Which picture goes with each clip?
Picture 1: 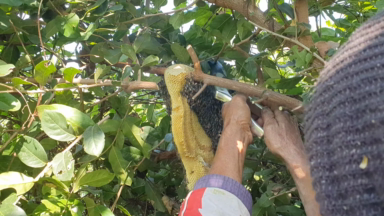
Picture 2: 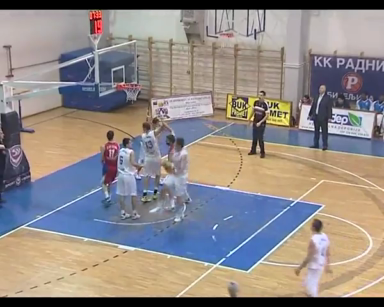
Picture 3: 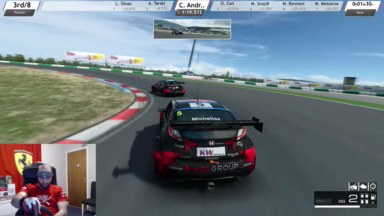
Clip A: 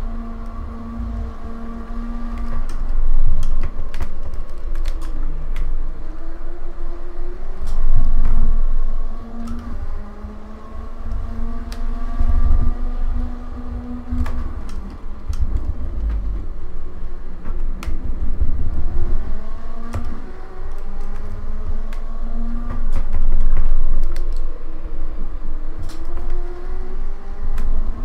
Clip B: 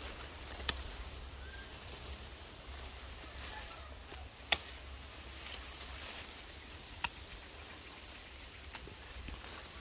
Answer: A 3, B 1